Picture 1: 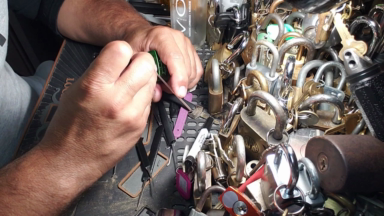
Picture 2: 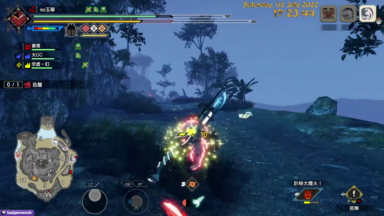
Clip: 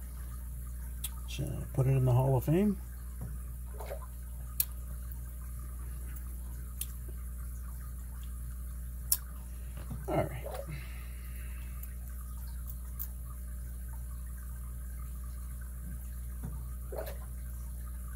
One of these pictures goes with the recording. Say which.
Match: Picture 1